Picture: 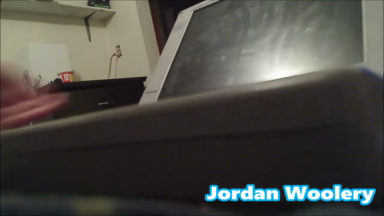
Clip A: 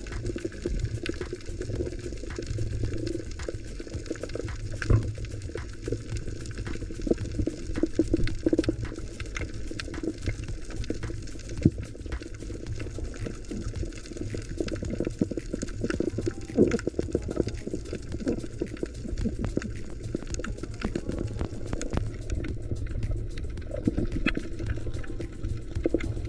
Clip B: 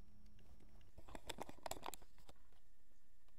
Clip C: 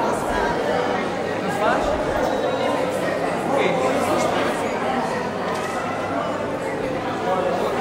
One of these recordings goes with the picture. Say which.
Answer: B